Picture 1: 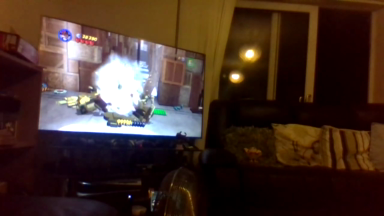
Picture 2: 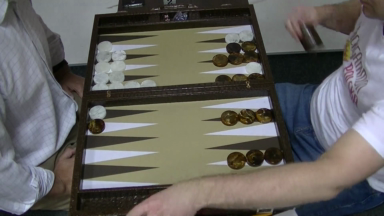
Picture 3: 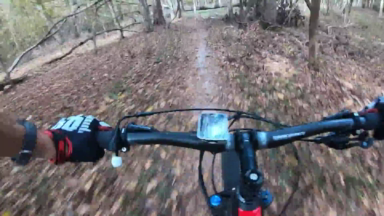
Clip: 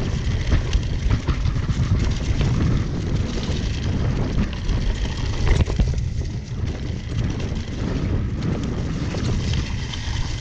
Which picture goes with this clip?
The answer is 3